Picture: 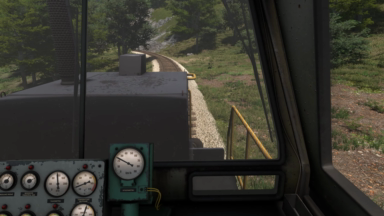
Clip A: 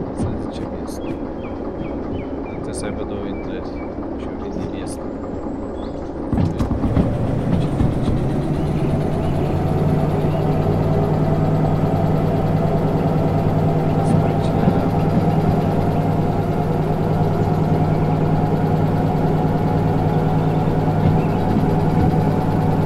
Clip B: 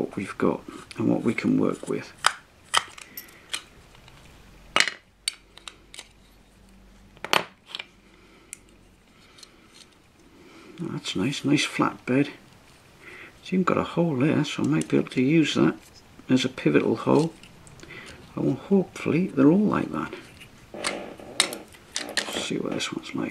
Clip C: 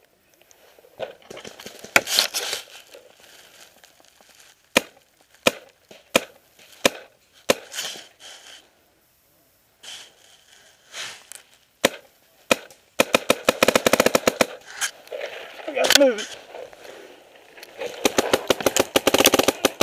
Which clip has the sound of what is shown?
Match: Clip A